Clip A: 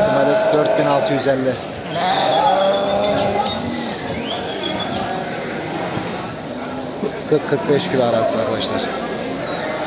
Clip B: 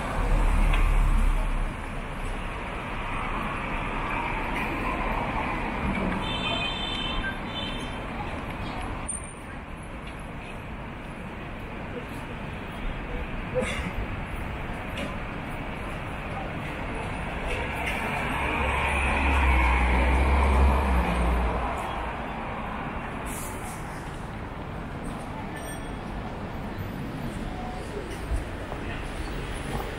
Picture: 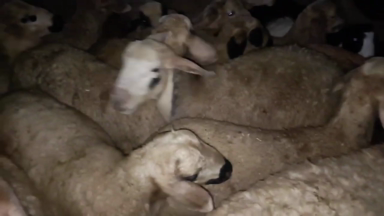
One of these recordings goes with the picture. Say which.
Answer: A